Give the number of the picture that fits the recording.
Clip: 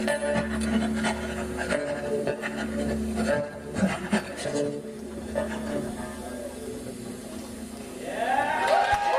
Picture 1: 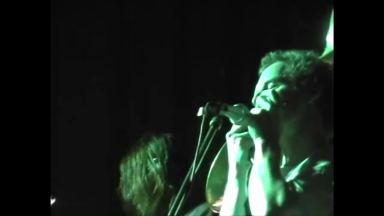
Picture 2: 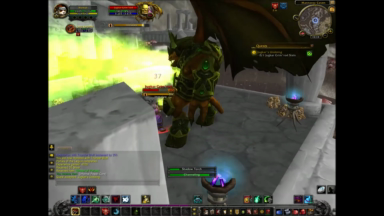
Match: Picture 1